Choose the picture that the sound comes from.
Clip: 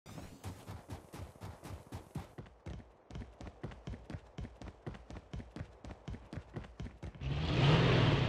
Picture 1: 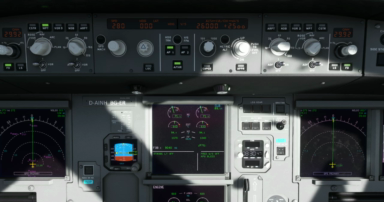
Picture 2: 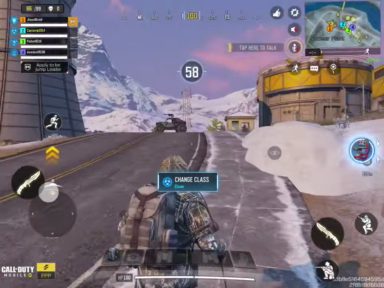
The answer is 2